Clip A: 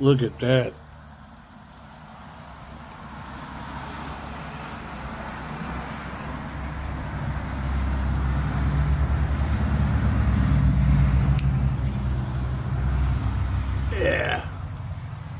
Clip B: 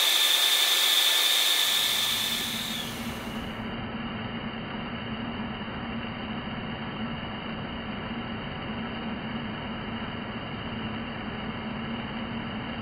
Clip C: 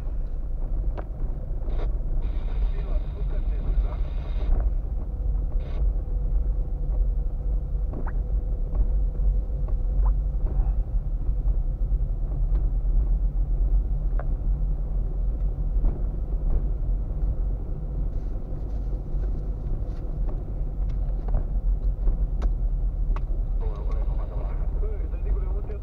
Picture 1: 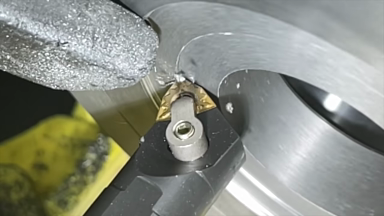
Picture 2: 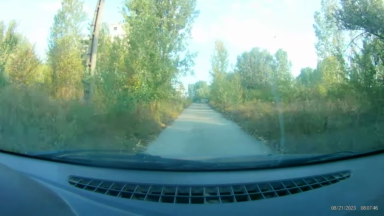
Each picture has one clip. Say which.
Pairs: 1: B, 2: C